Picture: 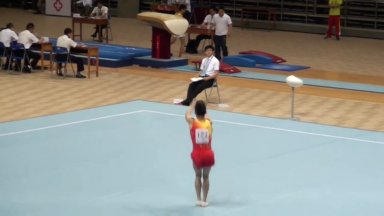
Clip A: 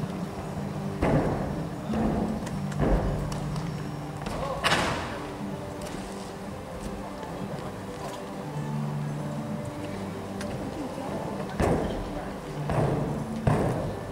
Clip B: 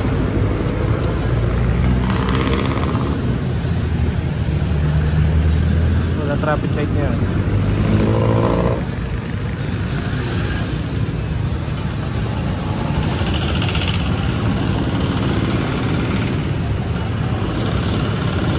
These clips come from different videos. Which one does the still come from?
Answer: A